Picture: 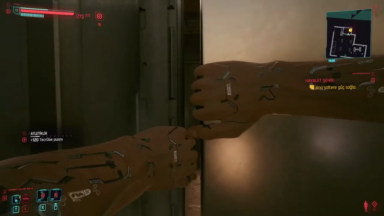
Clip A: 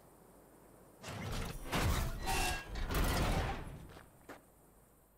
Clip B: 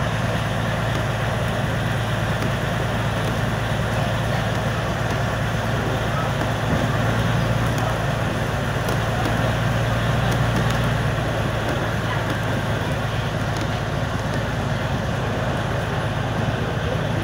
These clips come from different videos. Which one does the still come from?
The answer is A